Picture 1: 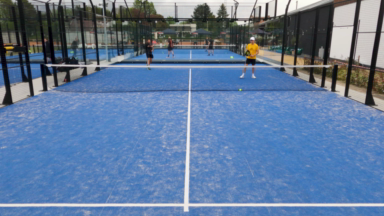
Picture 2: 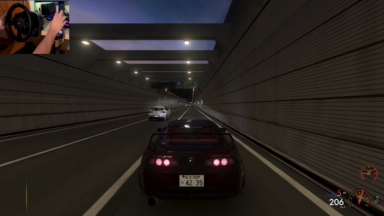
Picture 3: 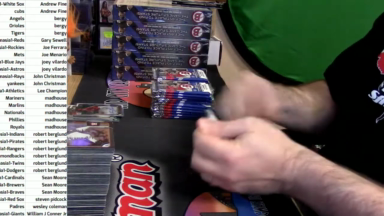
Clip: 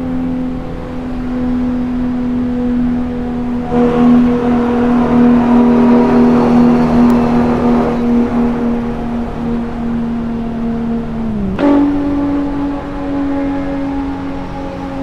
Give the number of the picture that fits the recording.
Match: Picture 2